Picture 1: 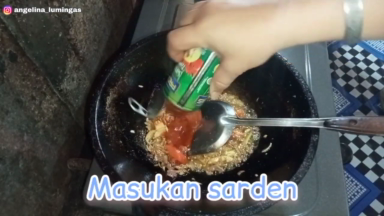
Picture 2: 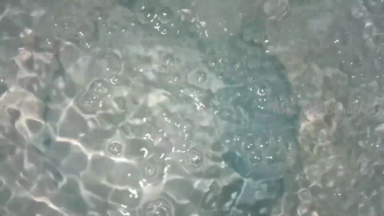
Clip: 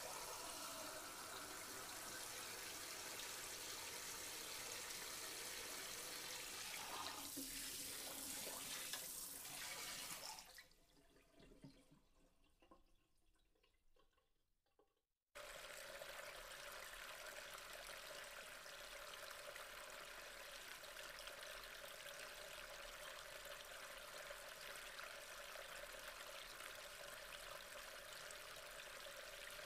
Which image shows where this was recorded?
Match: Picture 2